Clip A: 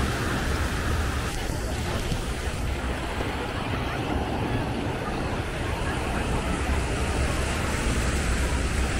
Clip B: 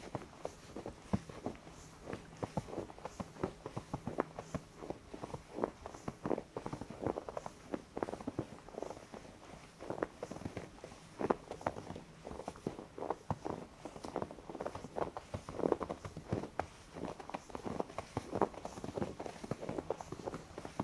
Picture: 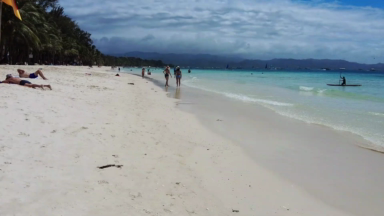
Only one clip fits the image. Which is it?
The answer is A